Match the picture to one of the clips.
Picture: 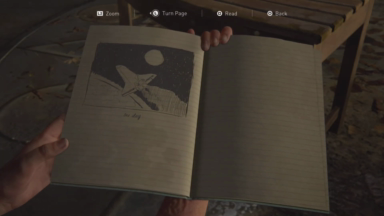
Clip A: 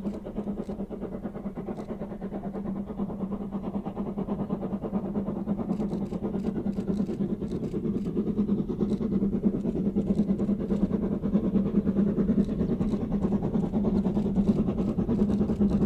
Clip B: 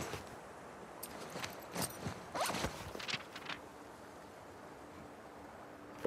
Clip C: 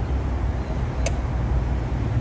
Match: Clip B